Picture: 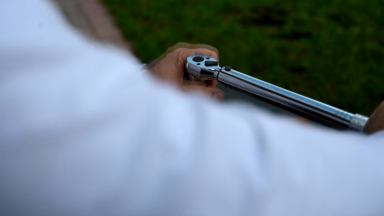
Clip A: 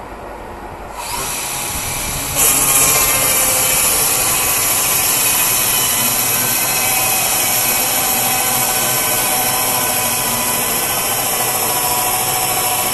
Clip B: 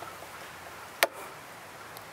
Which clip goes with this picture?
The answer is B